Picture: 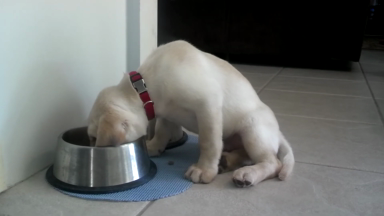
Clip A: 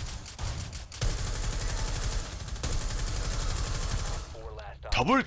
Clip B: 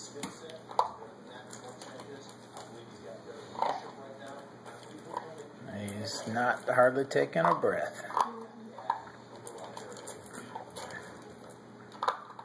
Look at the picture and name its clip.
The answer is B